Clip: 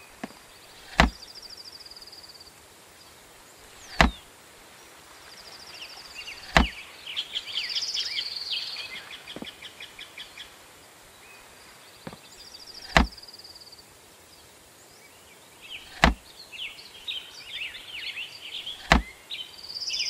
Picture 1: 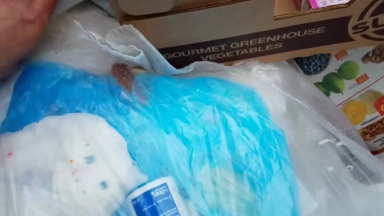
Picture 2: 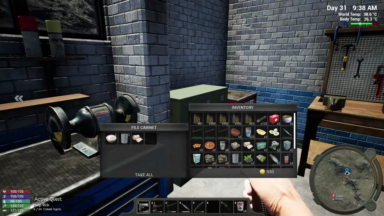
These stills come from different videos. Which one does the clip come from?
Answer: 2